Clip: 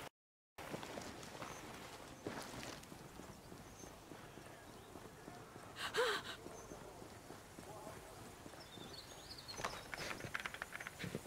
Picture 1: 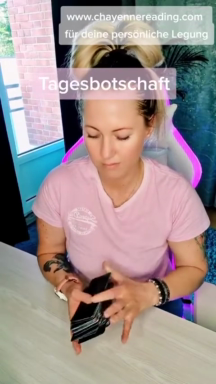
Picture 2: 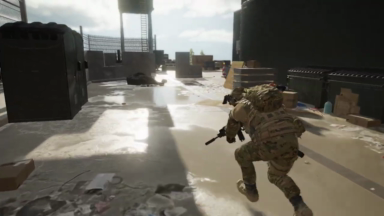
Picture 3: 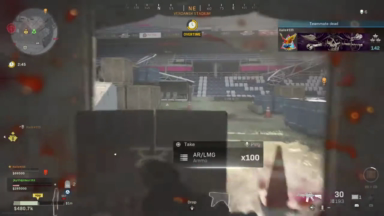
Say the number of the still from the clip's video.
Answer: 2